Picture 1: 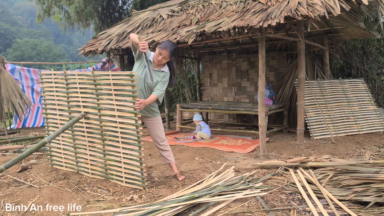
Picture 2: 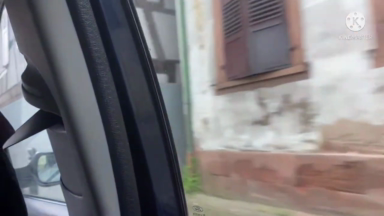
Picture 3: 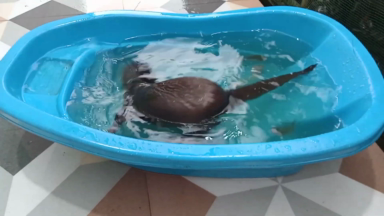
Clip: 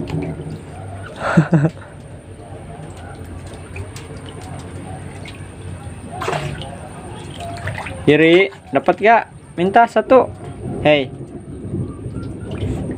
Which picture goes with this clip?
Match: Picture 3